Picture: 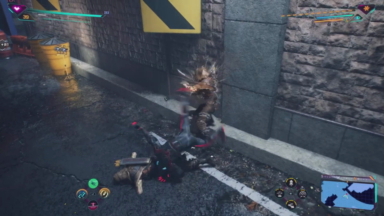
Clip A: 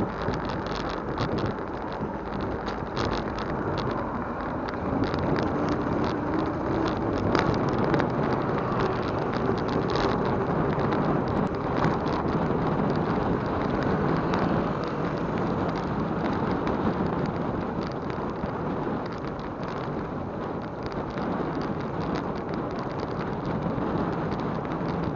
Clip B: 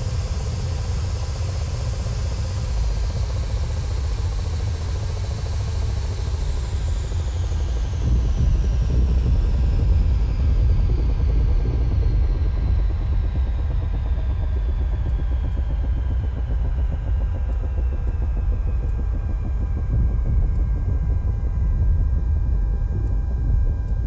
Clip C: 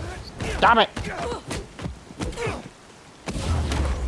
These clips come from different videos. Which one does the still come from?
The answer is C